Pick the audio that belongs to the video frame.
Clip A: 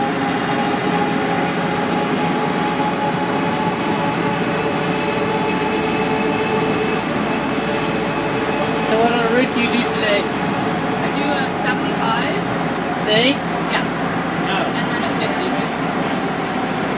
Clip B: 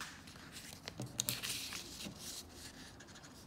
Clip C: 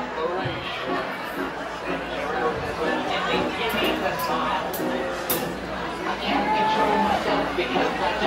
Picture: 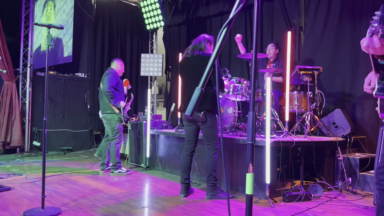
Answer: C